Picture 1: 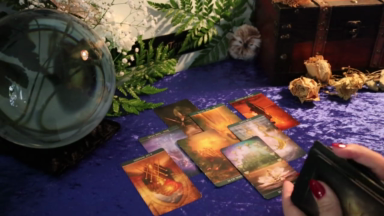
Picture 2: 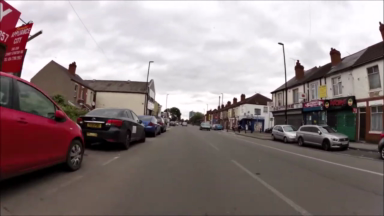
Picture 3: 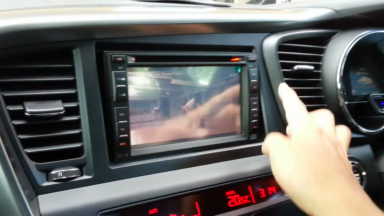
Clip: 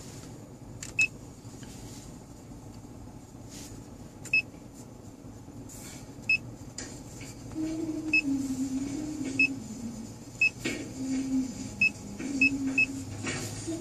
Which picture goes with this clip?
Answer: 3